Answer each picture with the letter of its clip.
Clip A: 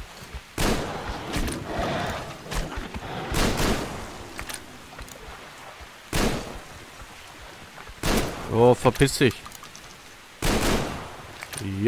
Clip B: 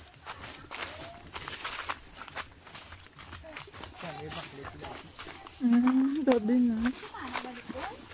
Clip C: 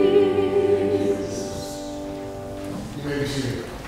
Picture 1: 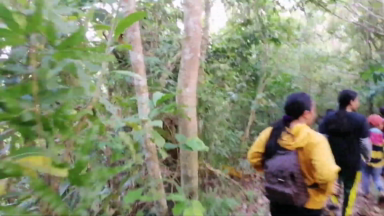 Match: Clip B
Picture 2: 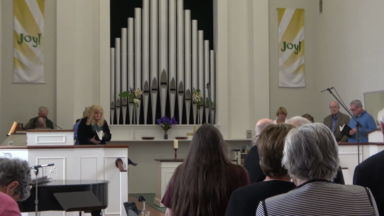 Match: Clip C